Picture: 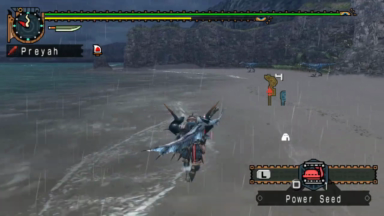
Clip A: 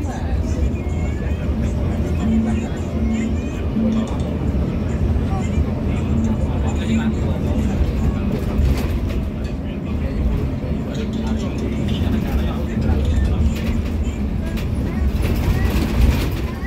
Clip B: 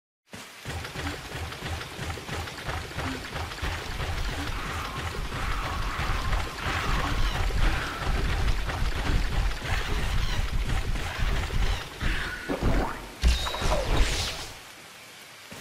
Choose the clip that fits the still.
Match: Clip B